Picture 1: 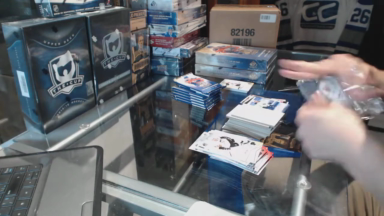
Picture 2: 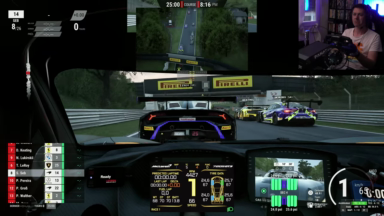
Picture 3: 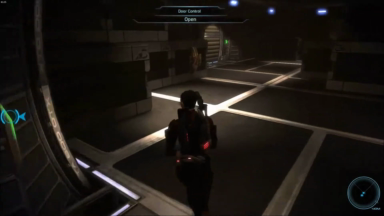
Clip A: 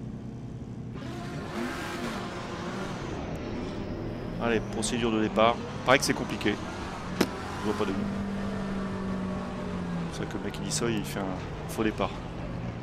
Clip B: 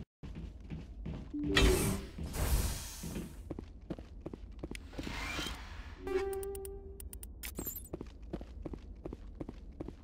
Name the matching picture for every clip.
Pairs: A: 2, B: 3